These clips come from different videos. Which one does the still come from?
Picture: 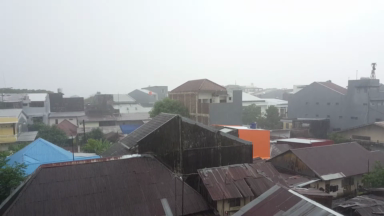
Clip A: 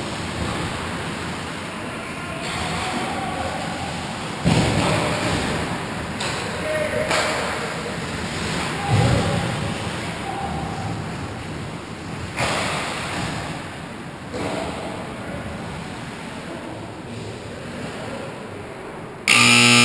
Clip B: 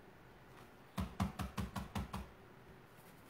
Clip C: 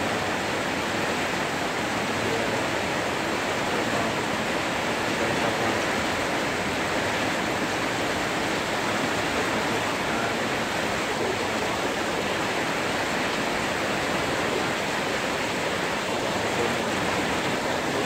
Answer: C